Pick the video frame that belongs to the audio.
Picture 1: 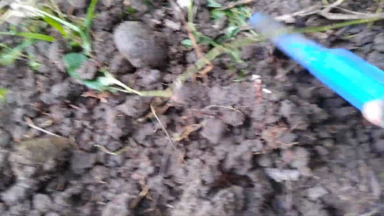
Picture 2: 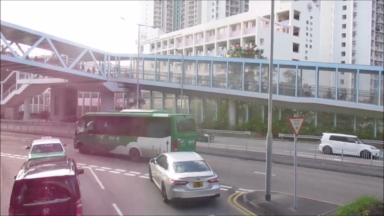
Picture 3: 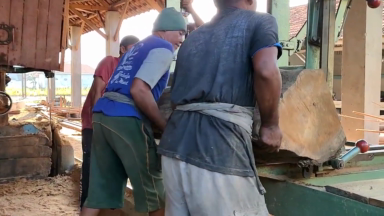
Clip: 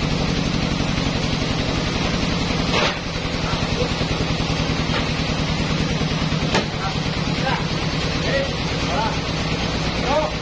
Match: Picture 3